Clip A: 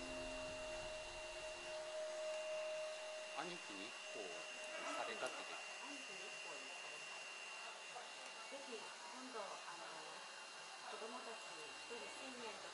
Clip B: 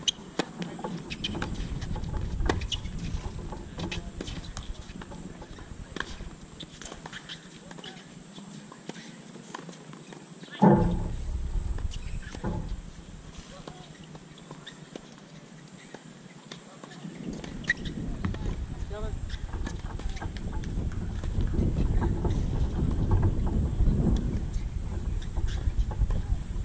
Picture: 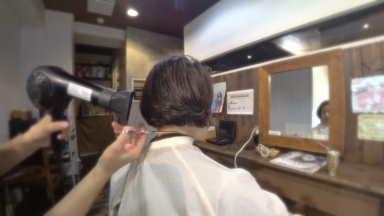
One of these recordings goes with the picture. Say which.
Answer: A